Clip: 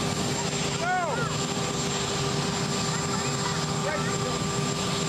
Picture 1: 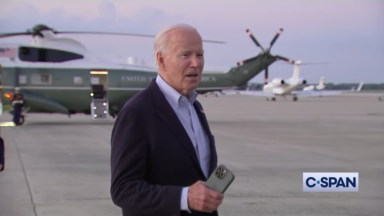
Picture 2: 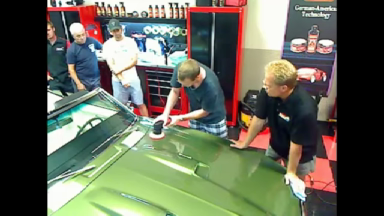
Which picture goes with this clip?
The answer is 1